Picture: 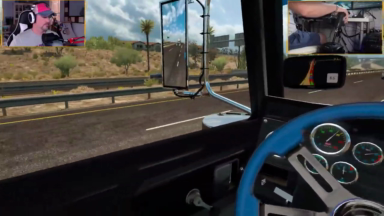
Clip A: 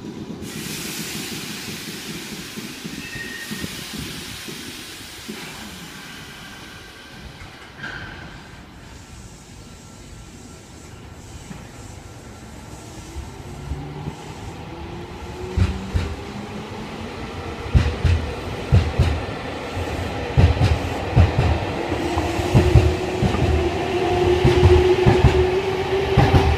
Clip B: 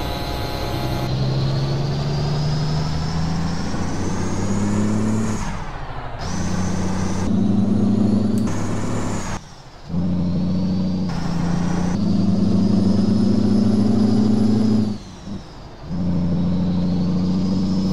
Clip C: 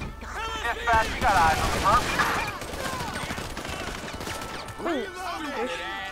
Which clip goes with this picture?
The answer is B